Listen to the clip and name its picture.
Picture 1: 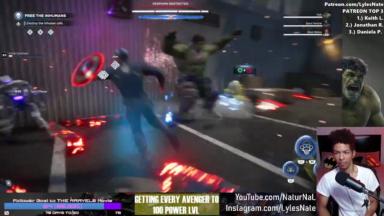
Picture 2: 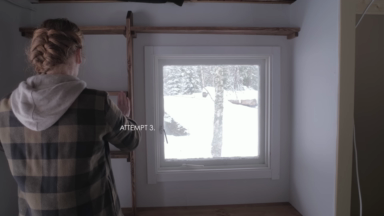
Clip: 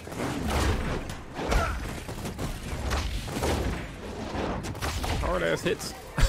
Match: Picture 1